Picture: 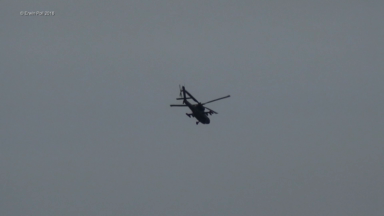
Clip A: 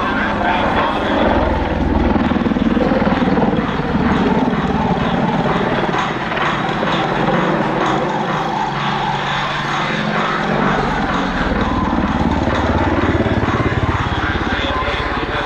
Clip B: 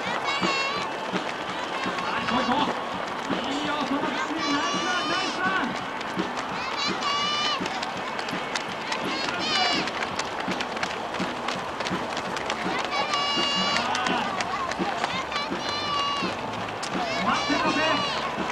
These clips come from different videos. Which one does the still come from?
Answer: A